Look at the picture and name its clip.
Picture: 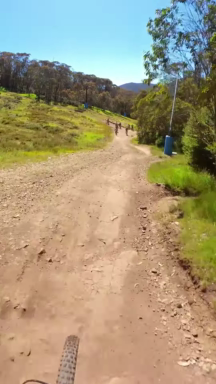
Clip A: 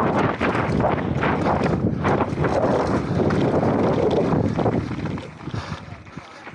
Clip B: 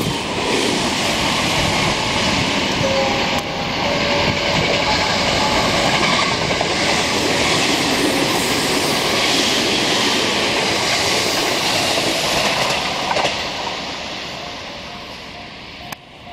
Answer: A